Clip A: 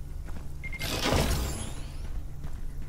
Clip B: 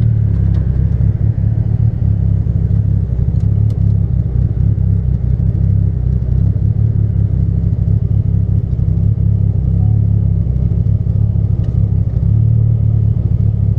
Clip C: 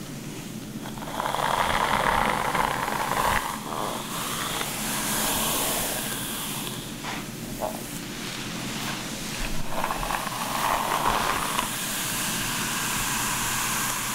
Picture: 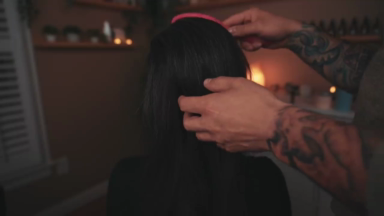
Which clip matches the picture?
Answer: C